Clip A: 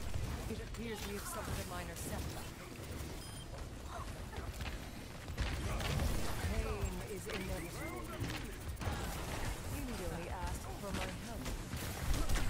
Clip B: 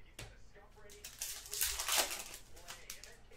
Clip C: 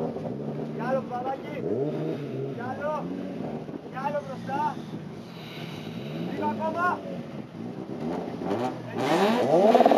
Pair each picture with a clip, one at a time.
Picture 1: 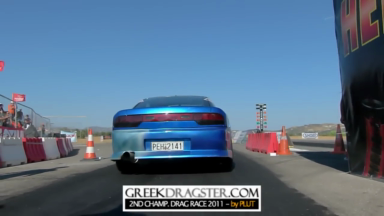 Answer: C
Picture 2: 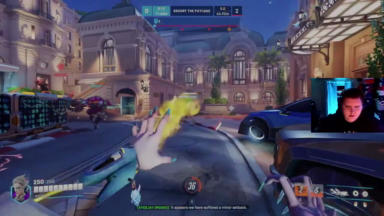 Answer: A